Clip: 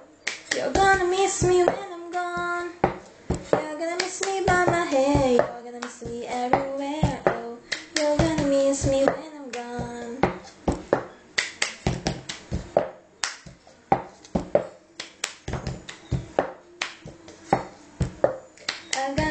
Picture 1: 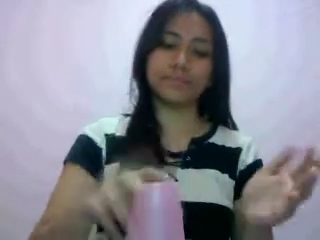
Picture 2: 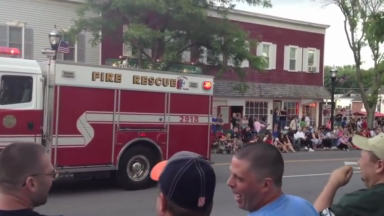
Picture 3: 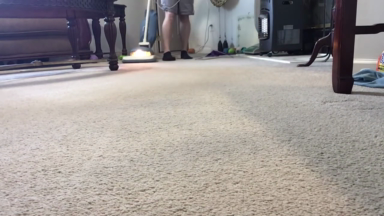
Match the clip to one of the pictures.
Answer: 1